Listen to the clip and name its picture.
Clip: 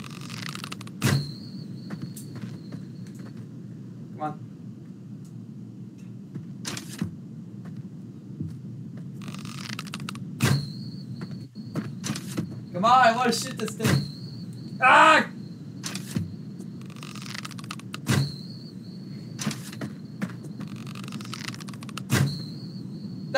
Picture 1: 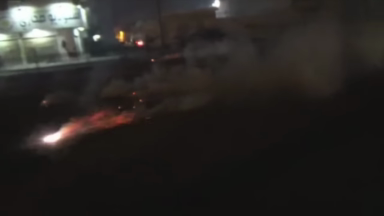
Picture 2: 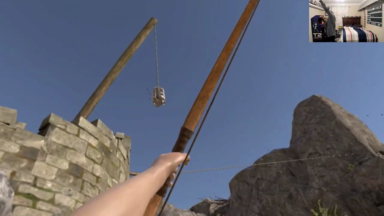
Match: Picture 2